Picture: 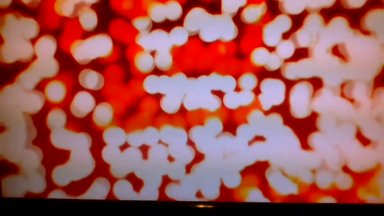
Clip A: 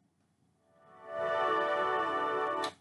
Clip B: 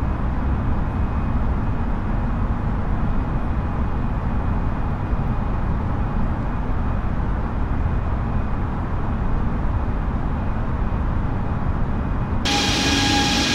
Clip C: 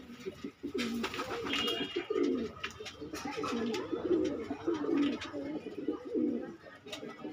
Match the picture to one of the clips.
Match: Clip A